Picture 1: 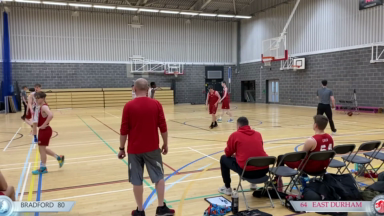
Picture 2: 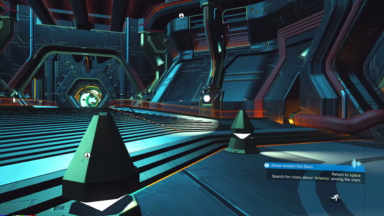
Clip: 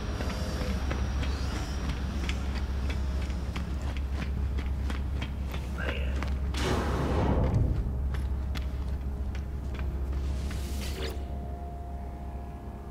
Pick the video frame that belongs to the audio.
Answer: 2